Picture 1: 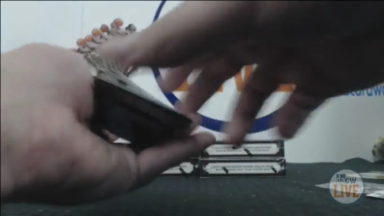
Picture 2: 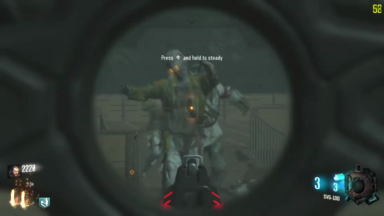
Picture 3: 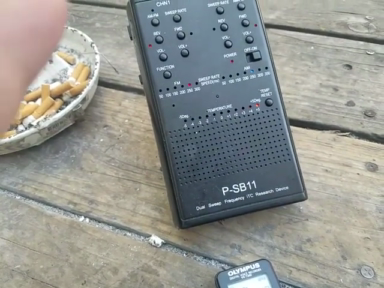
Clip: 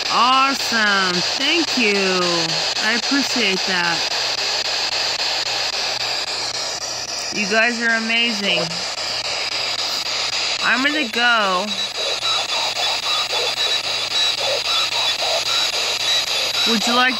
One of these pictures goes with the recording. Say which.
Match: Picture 3